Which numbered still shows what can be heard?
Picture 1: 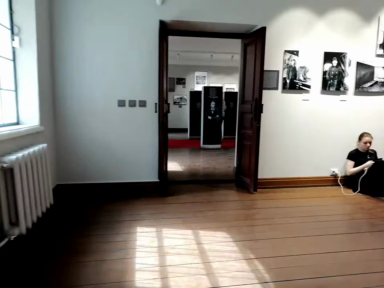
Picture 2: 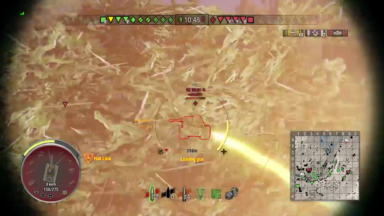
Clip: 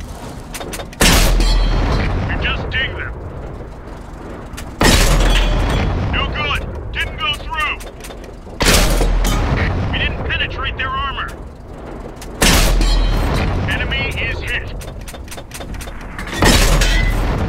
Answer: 2